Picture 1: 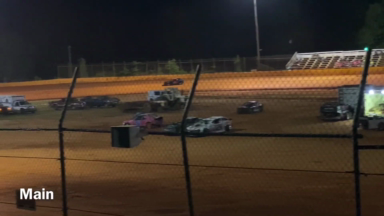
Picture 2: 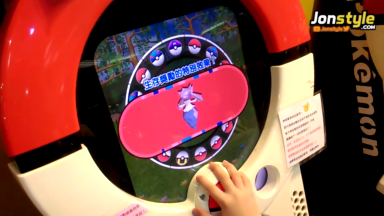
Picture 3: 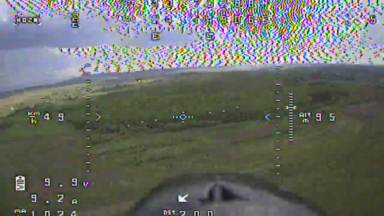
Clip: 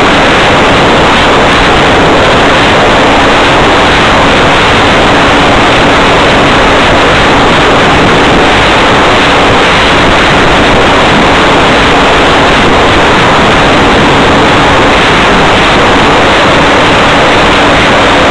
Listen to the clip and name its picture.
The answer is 3